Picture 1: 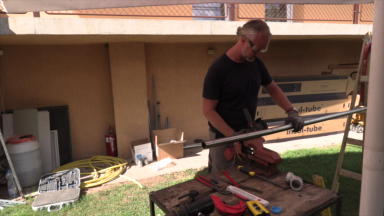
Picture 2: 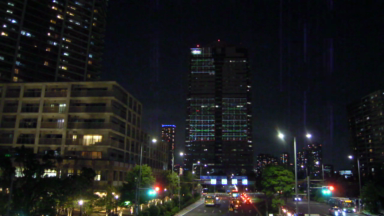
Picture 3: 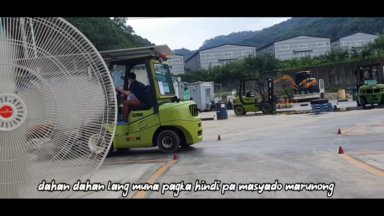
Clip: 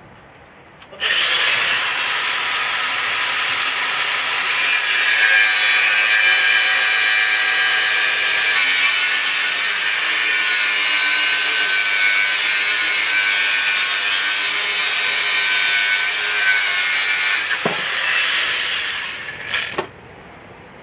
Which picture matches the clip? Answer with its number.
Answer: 1